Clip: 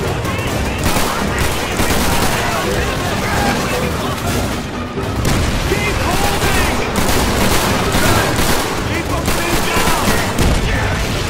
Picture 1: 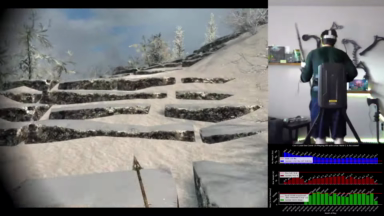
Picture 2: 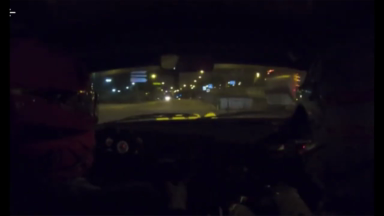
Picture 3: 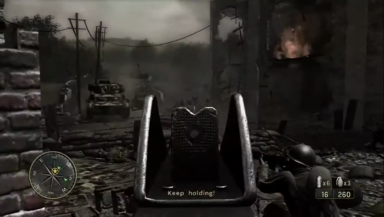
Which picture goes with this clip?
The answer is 3